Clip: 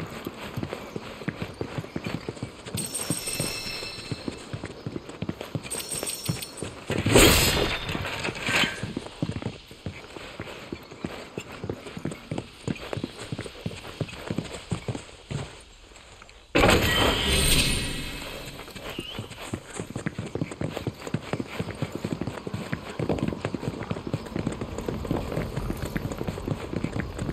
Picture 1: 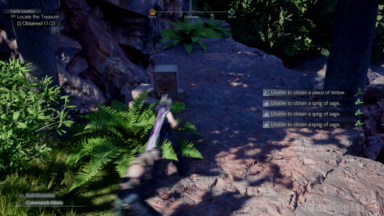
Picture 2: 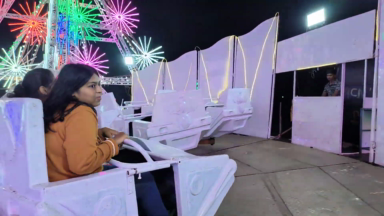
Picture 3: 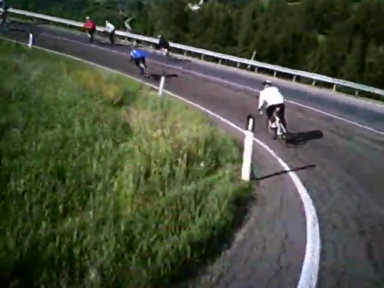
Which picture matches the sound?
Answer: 1